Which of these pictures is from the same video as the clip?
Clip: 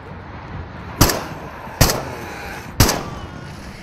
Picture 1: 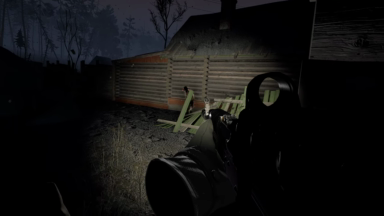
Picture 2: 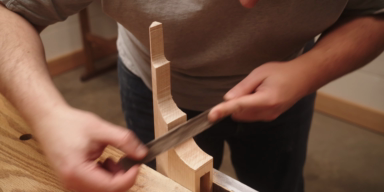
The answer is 1